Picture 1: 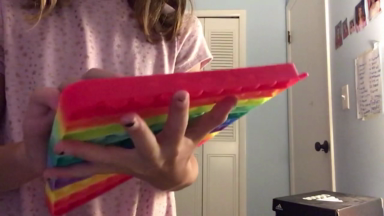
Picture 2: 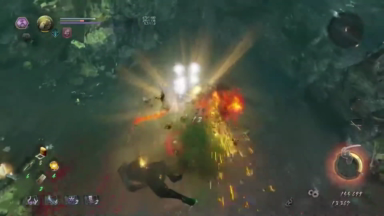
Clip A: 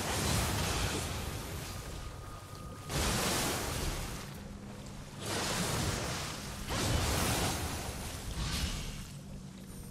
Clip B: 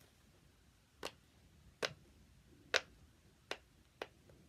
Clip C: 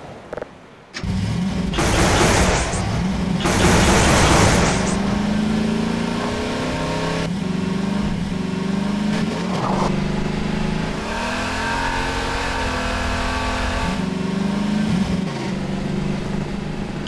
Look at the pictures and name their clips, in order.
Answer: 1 B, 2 A